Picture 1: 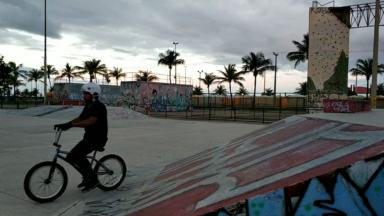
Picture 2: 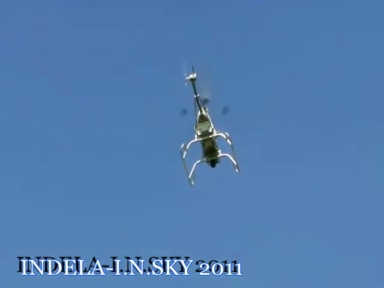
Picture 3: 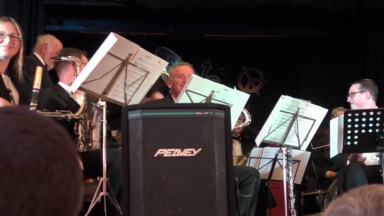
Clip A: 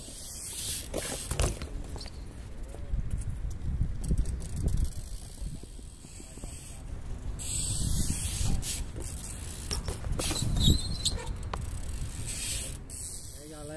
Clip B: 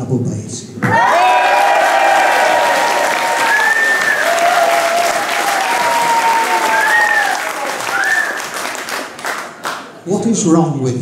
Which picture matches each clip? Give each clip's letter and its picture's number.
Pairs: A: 1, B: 3